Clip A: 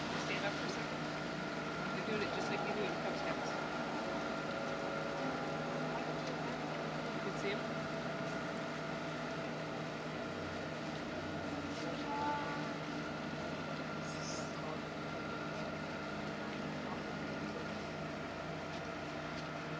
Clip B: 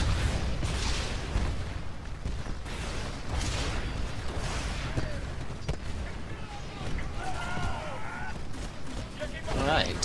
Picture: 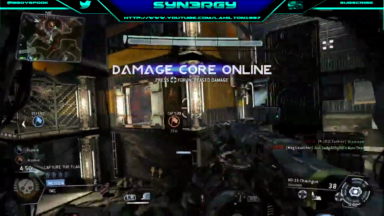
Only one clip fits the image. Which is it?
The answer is B